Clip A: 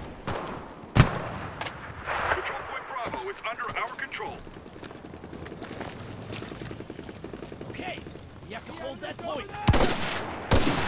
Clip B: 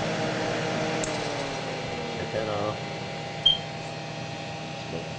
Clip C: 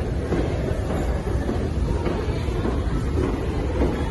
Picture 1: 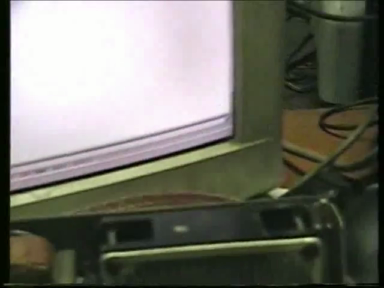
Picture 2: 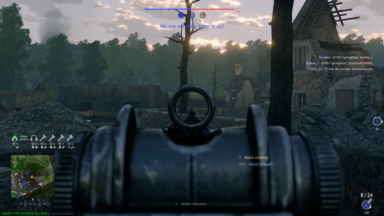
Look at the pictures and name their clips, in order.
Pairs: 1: B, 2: A